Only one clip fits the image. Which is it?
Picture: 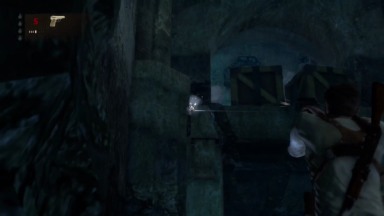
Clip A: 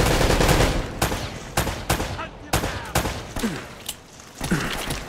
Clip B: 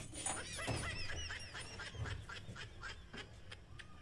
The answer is A